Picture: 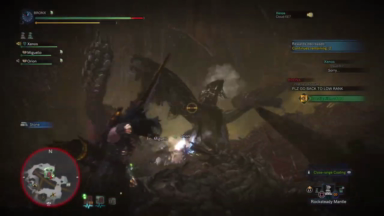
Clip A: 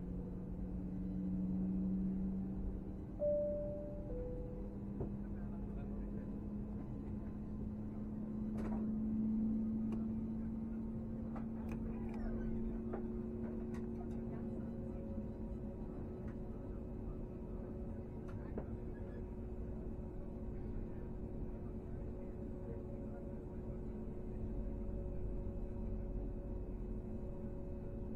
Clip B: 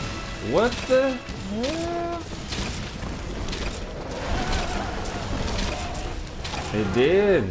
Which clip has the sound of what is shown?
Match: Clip B